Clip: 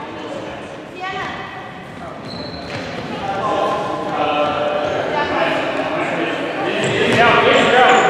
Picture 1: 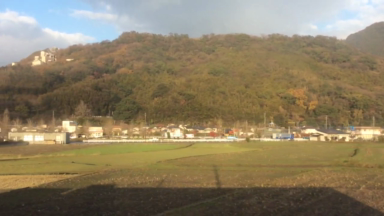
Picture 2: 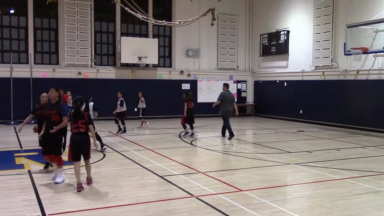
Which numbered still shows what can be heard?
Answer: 2